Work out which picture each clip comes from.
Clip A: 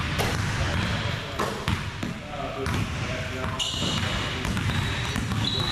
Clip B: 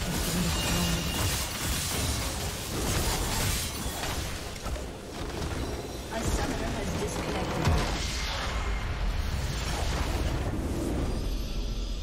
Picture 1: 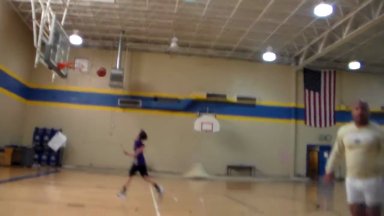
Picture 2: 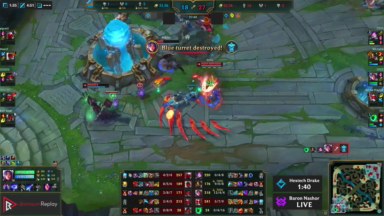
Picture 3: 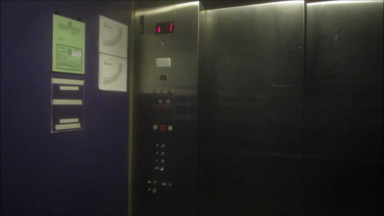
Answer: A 1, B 2